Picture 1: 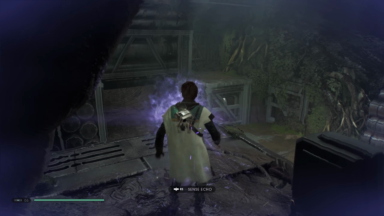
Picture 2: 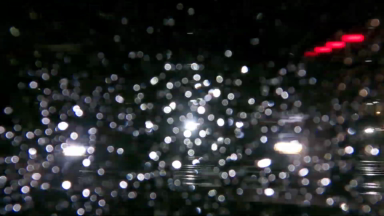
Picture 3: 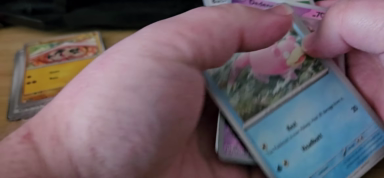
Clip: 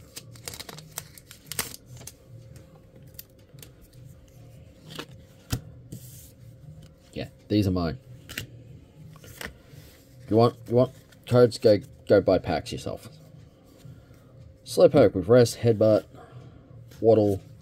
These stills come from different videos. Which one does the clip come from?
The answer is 3